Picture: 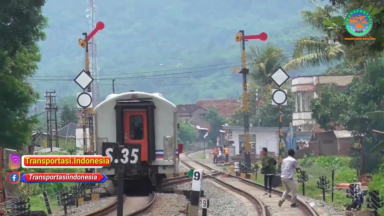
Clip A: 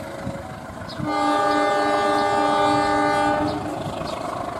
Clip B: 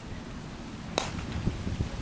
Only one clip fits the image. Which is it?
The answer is A